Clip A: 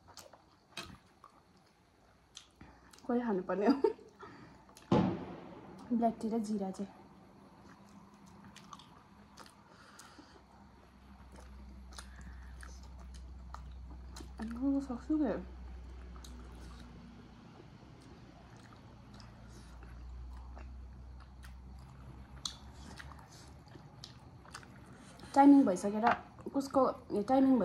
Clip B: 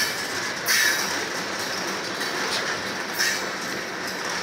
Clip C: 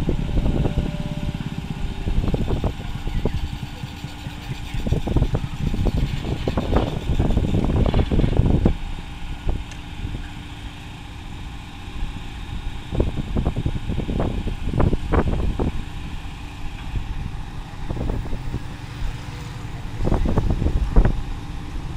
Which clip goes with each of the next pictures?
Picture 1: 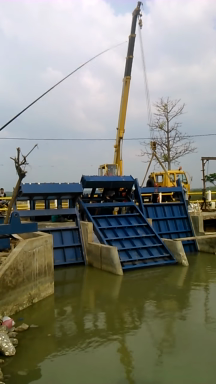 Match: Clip C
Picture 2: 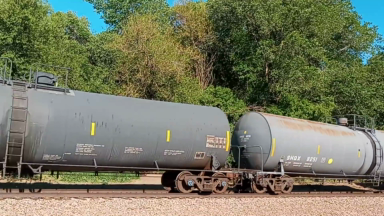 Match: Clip B